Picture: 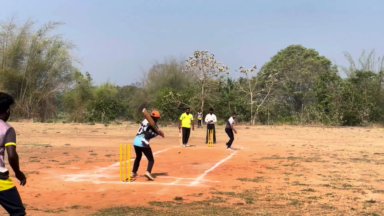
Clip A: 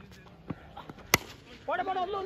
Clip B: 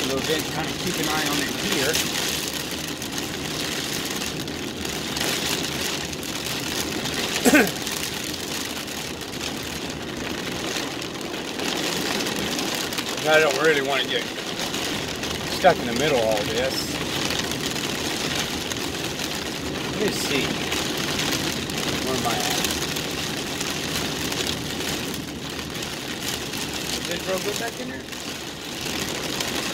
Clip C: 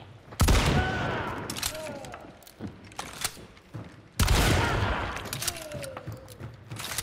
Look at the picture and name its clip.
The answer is A